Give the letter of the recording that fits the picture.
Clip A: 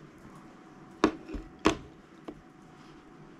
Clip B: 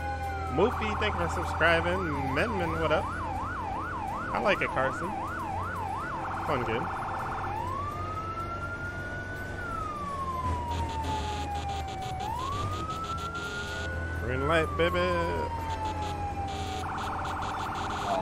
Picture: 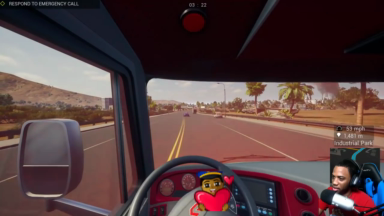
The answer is B